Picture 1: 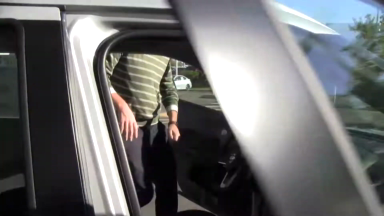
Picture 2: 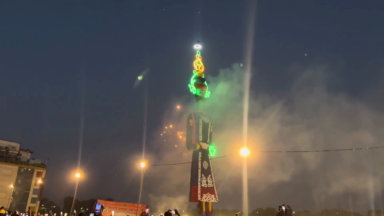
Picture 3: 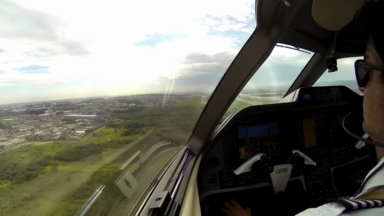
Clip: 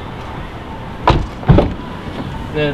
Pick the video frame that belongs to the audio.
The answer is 1